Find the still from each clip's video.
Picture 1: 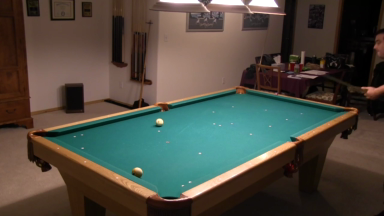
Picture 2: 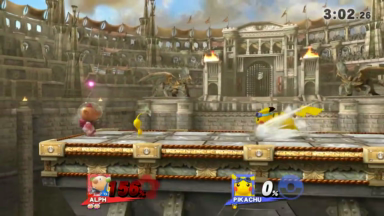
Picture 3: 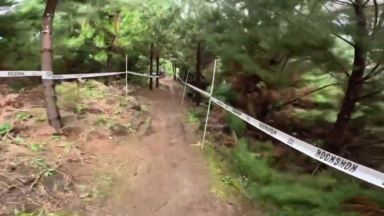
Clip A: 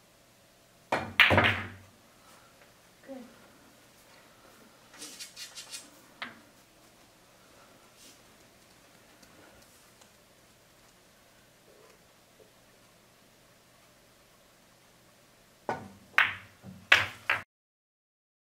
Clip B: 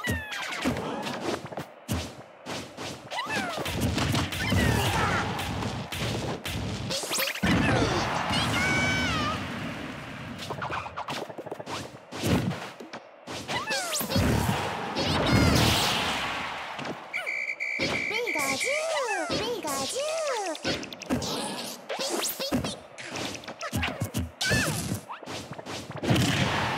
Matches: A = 1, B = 2